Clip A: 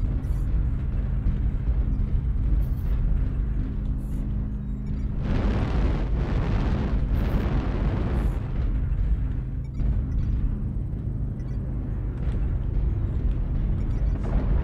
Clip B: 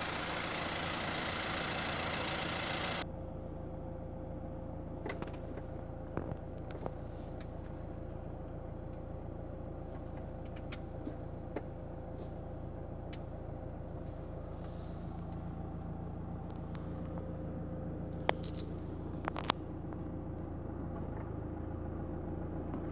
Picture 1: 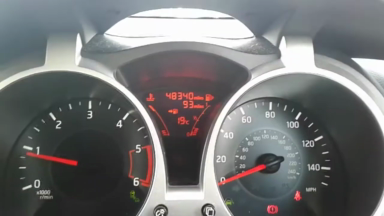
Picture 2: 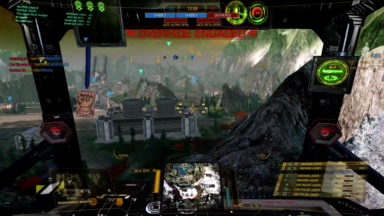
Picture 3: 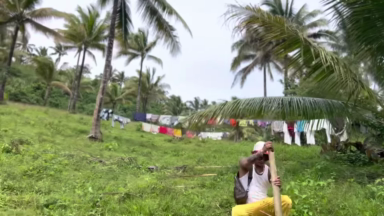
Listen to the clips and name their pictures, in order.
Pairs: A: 2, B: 1